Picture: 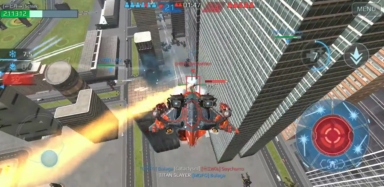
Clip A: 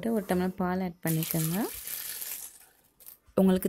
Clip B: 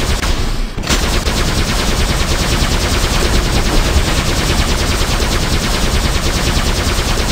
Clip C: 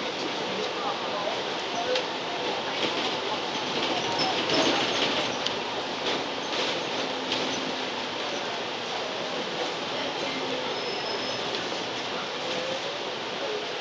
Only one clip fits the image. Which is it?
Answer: B